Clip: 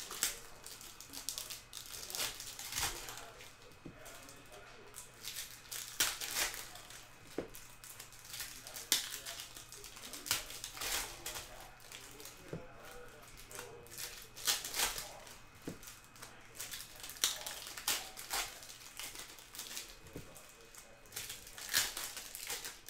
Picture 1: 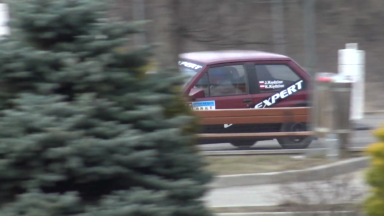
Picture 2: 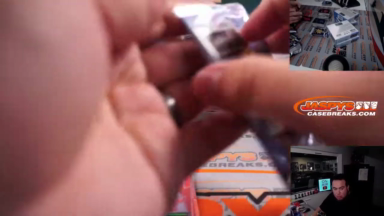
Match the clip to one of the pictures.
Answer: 2